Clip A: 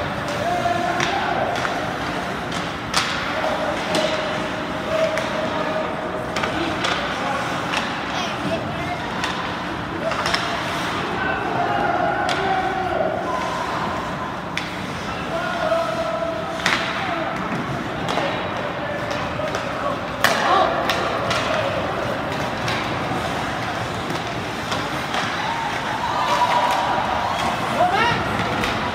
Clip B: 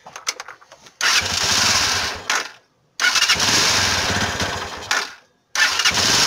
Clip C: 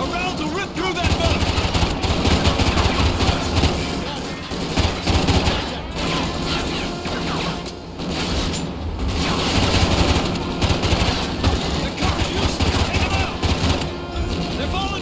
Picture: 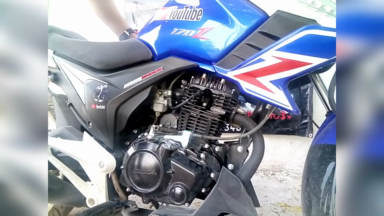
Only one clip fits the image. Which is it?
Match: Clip B